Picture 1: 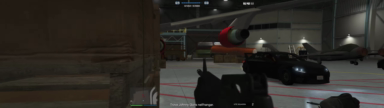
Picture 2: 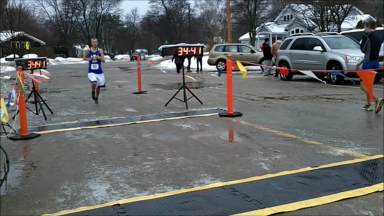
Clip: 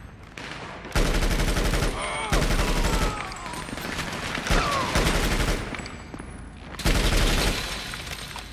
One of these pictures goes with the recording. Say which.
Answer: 1